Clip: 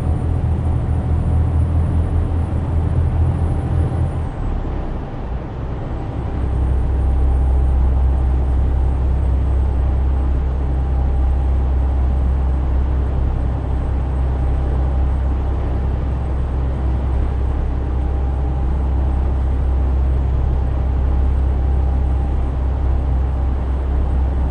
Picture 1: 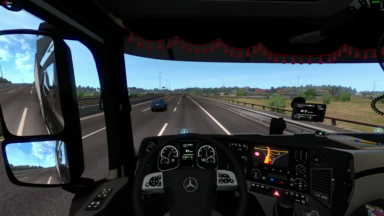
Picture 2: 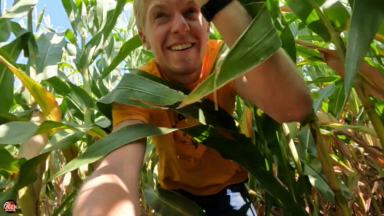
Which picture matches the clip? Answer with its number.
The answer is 1